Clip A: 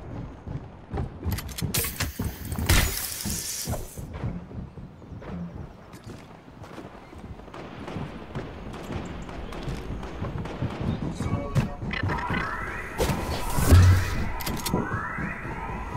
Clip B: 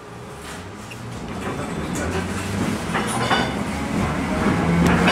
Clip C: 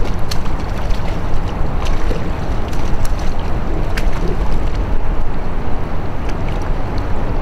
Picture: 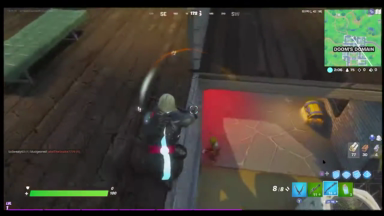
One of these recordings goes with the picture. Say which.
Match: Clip A